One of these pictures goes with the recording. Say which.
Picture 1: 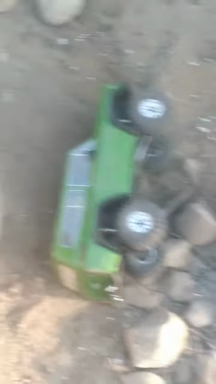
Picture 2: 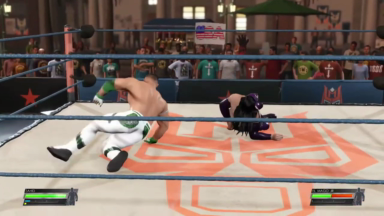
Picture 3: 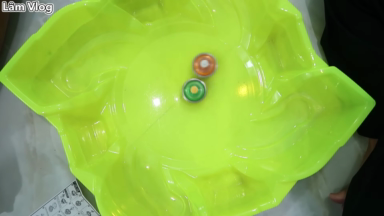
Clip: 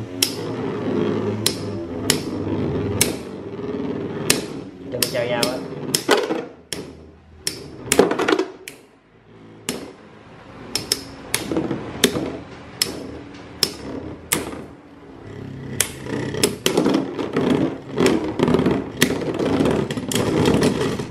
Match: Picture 3